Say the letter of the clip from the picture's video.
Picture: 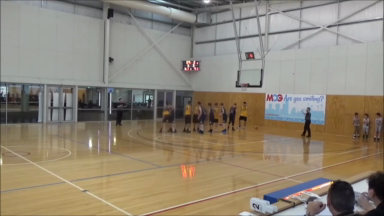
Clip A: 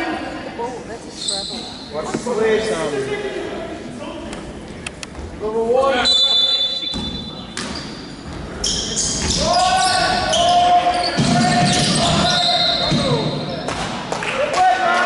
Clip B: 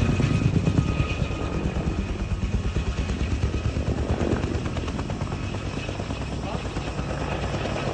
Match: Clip A